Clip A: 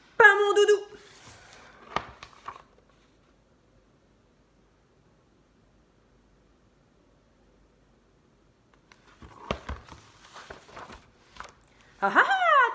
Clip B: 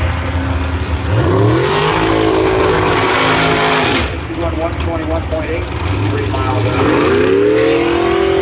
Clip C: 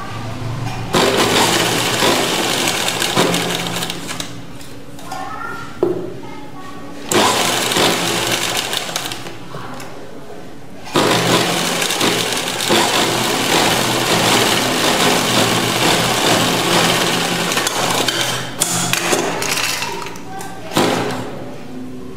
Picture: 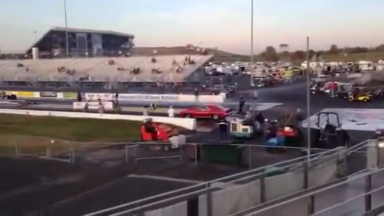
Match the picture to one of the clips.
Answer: B